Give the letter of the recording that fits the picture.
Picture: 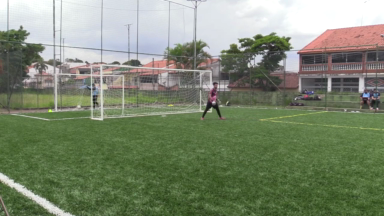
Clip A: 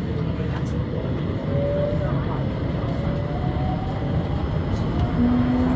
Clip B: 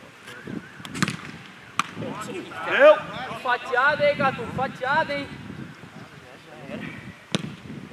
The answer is B